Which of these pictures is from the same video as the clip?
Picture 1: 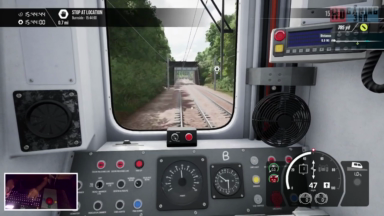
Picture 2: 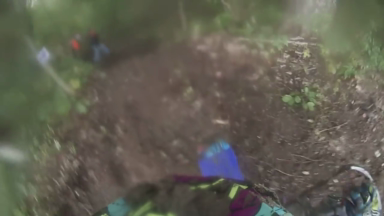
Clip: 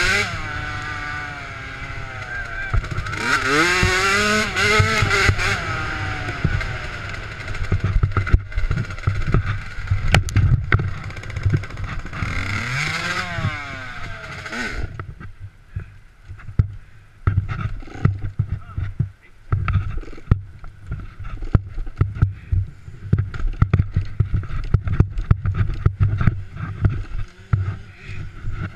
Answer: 2